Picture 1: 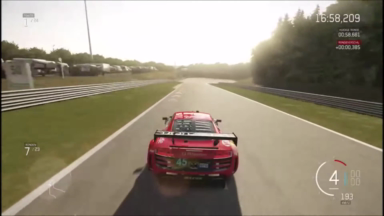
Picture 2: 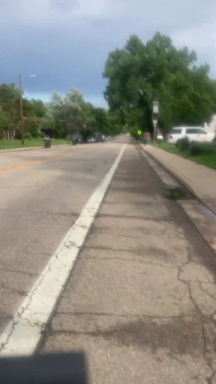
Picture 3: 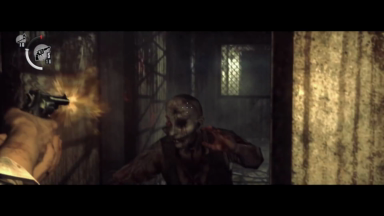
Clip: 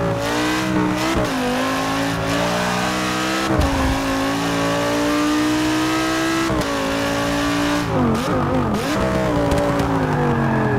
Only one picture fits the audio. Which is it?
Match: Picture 1